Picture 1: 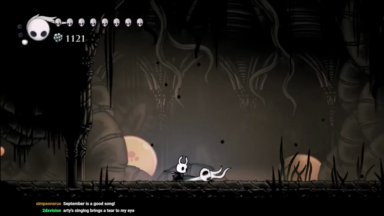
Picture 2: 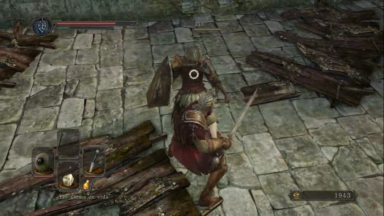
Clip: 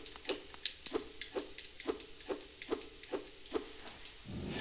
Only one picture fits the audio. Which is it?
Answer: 1